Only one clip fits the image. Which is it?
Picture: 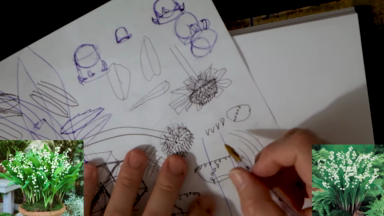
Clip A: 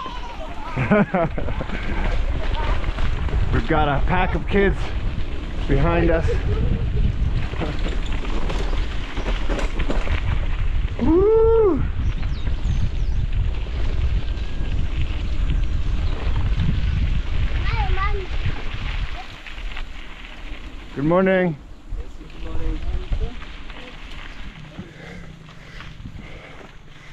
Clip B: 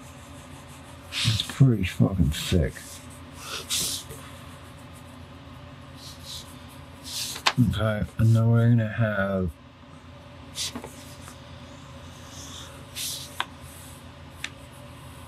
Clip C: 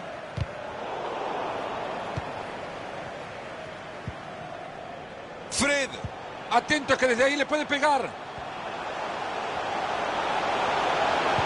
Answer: B